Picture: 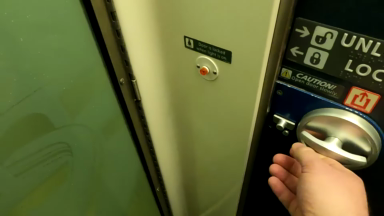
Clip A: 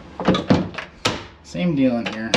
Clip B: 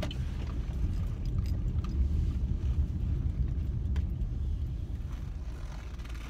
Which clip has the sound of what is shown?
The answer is A